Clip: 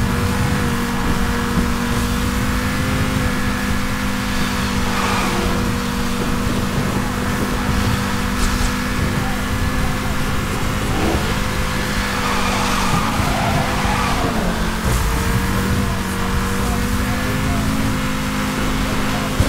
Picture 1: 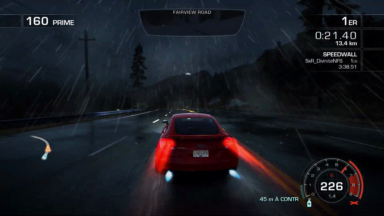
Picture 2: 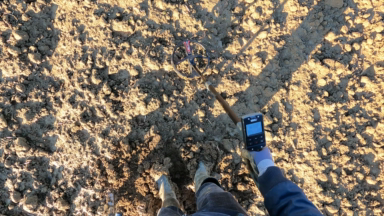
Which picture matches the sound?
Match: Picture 1